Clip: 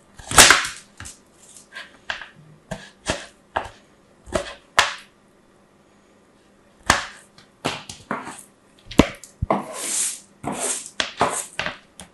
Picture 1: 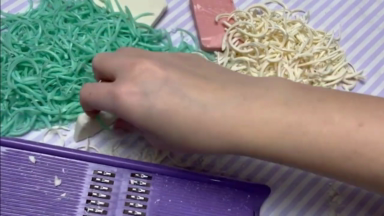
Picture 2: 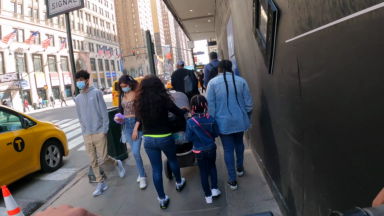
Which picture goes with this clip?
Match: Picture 1